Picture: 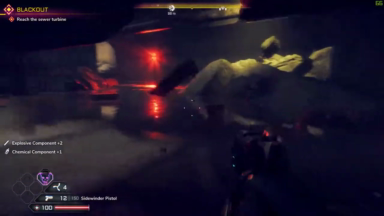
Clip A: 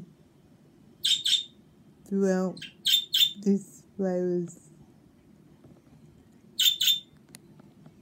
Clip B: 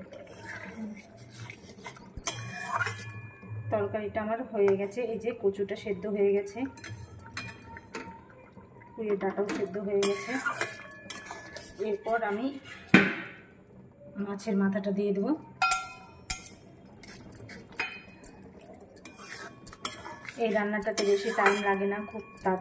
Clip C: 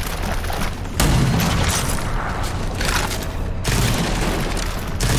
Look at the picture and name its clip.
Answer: C